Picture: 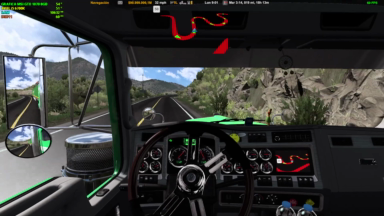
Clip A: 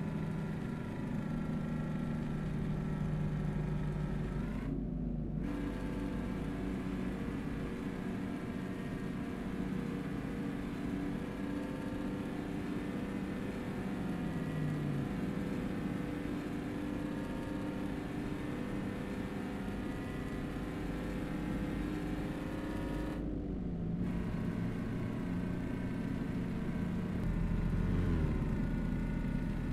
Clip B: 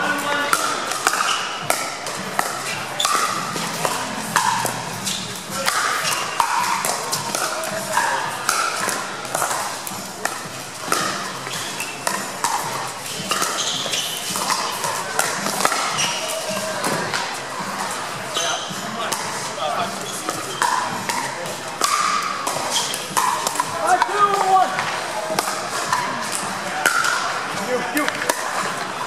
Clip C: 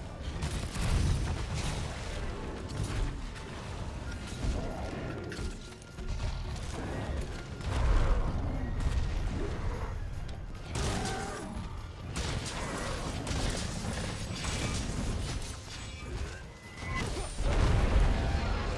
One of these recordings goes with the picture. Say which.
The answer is A